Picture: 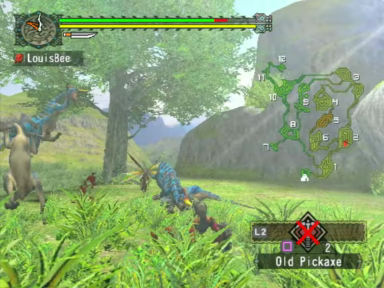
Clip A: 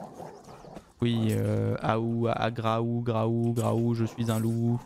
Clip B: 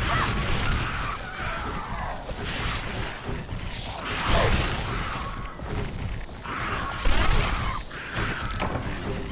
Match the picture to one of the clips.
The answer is B